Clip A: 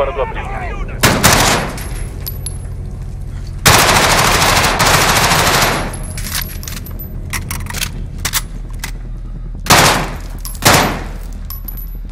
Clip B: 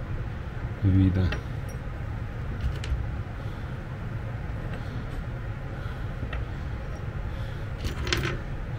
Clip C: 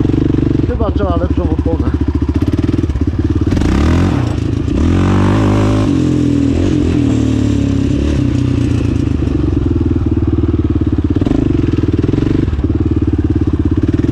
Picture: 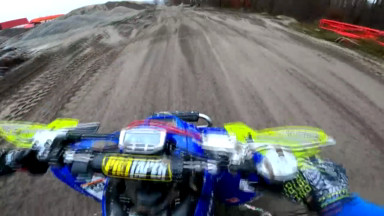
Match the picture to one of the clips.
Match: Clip C